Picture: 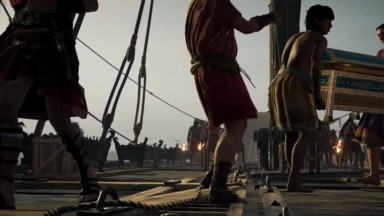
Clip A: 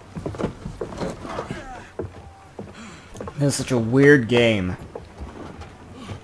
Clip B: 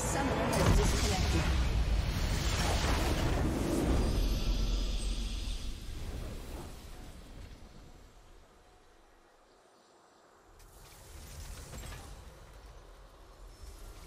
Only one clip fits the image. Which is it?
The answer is A